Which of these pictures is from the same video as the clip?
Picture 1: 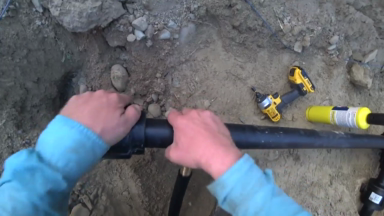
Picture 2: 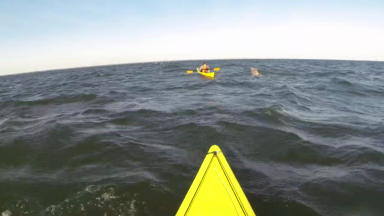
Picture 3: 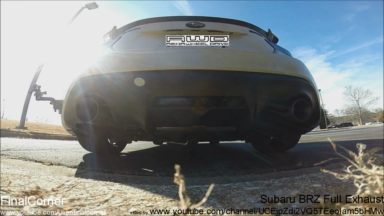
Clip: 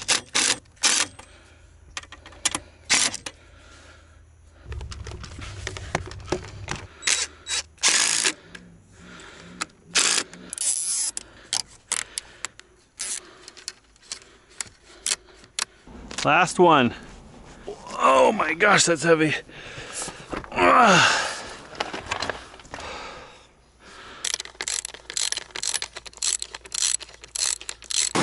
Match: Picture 1